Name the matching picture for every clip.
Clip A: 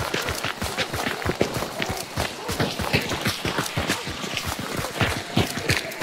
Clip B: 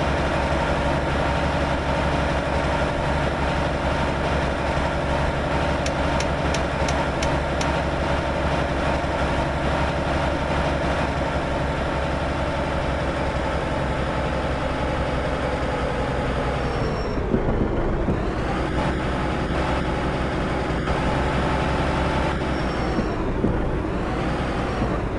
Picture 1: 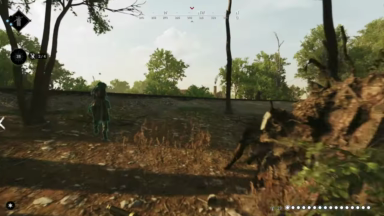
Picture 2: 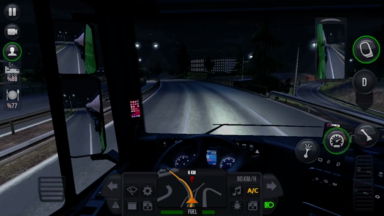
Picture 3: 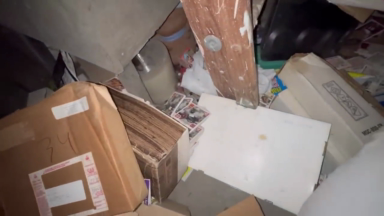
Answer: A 1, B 2